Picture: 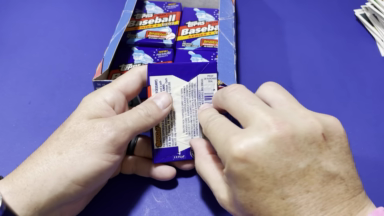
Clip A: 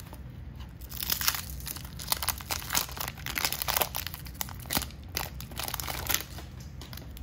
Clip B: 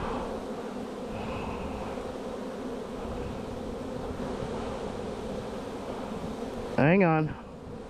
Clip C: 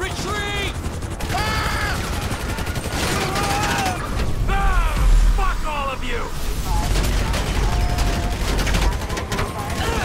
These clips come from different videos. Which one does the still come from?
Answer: A